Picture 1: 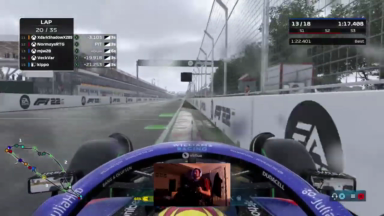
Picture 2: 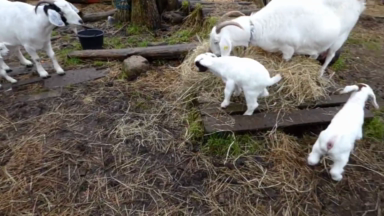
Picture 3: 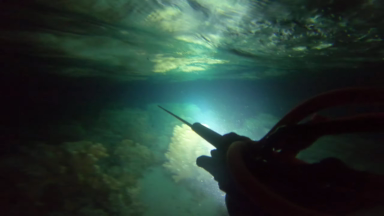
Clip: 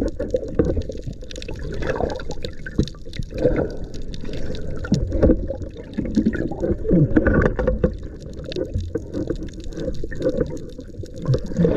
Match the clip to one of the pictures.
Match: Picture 3